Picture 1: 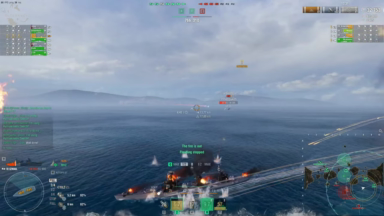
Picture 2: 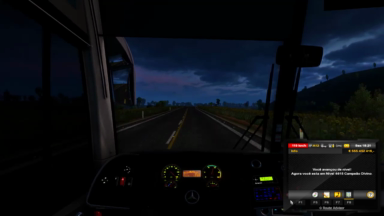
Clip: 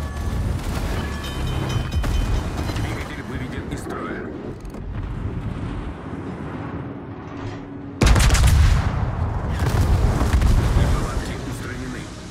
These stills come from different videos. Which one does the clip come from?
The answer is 1